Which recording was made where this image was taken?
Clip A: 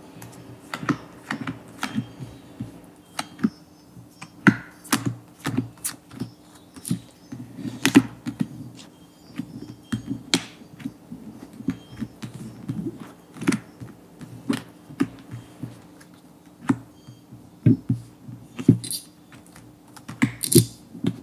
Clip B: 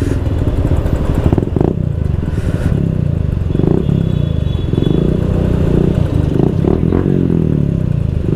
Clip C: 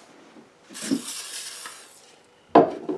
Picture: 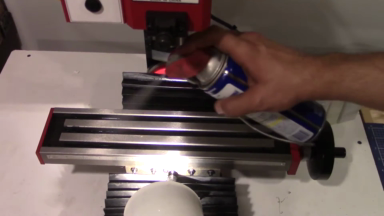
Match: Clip C